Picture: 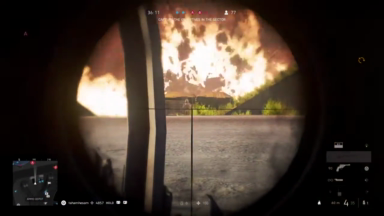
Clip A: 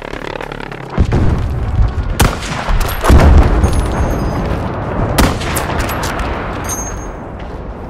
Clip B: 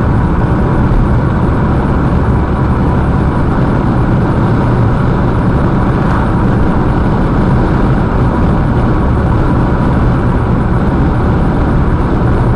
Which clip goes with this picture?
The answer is A